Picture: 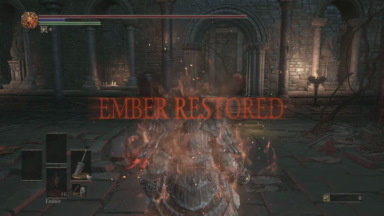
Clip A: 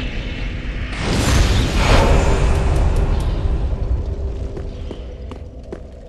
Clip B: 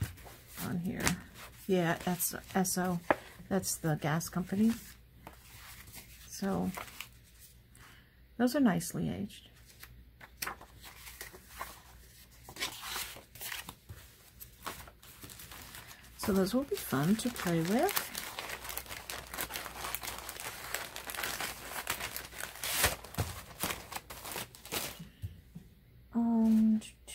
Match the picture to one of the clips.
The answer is A